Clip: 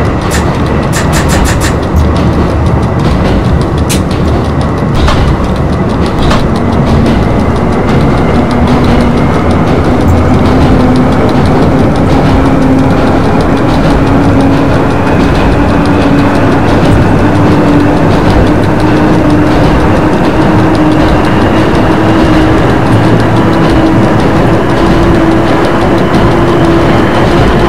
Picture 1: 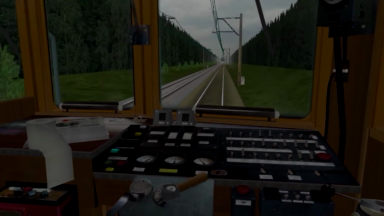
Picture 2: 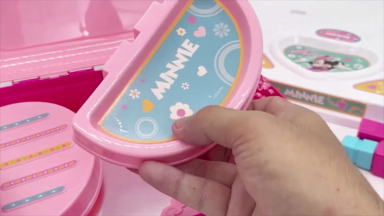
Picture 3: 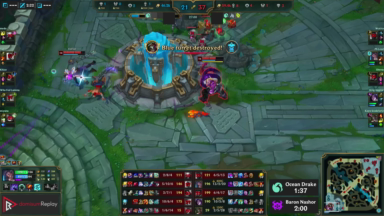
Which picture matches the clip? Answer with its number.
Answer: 1